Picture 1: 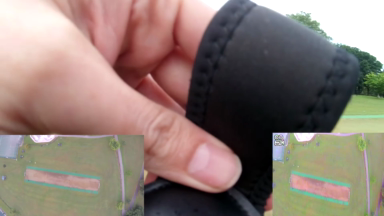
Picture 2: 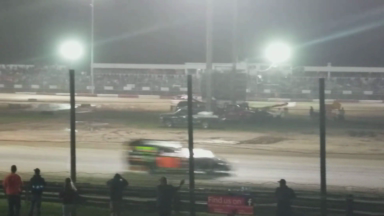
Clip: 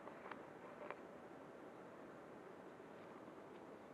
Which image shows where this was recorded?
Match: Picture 1